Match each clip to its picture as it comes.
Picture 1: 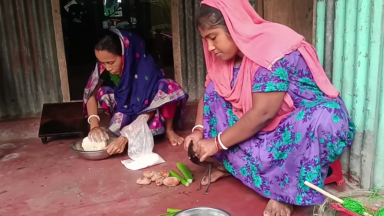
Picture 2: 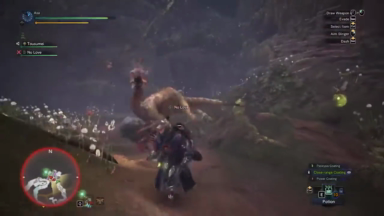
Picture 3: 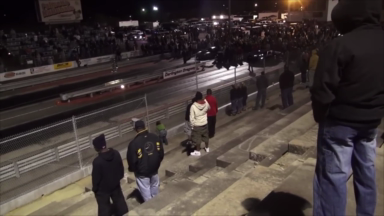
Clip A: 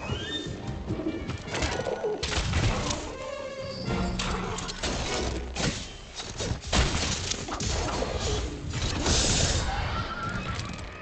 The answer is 2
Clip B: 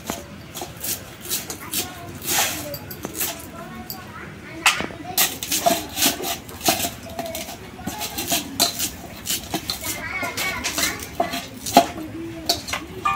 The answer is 1